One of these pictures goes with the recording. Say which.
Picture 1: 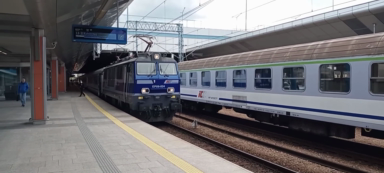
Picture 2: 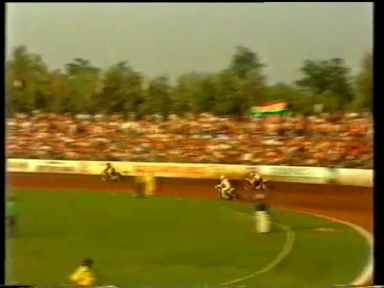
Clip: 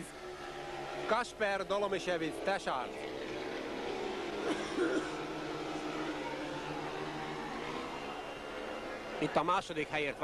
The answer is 2